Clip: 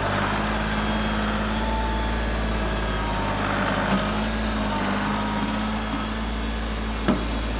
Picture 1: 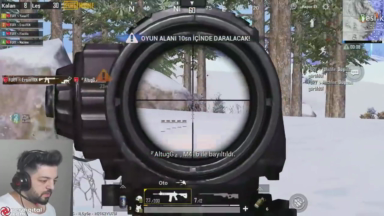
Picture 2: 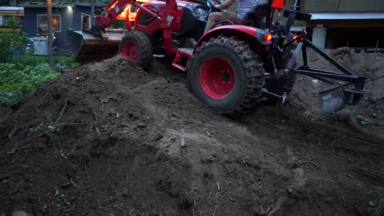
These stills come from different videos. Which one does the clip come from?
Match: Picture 2